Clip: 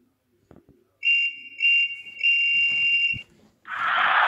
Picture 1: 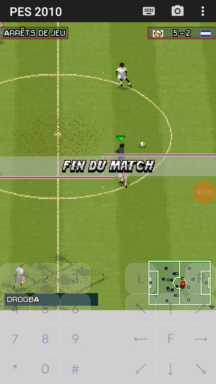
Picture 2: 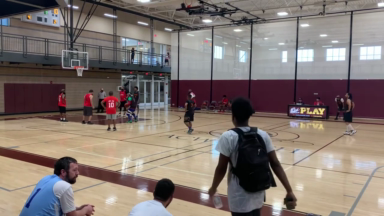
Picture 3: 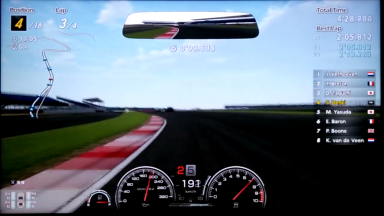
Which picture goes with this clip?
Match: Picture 1